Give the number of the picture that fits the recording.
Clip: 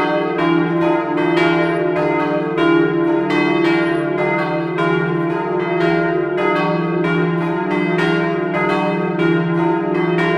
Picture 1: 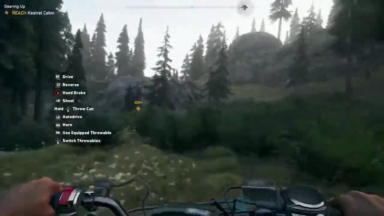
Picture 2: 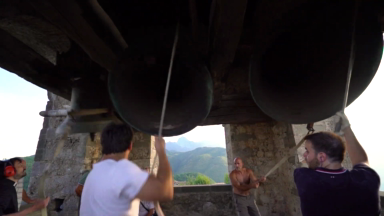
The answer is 2